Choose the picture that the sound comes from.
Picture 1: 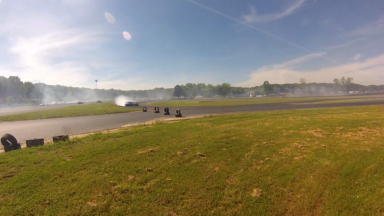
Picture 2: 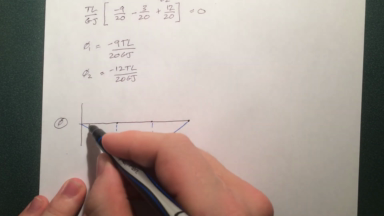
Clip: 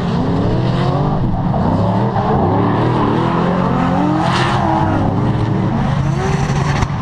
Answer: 1